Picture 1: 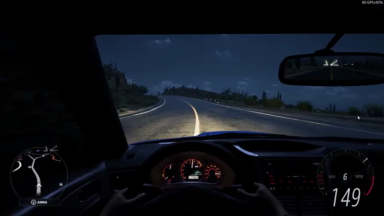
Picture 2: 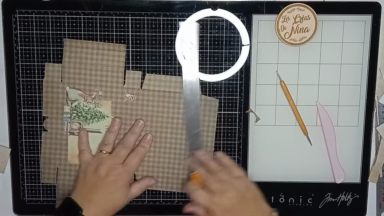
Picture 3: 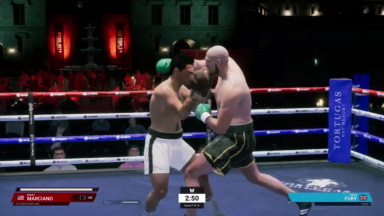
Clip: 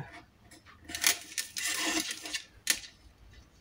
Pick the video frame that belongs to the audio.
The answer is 2